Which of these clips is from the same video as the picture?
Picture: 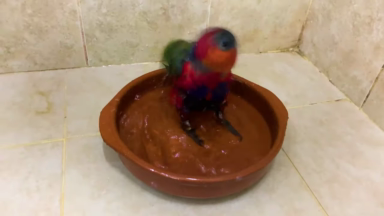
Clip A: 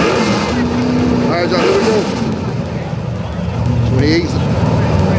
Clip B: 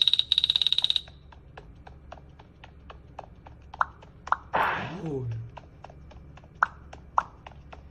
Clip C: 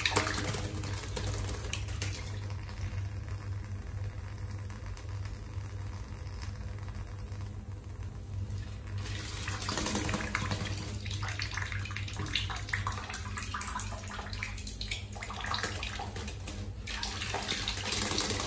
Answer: C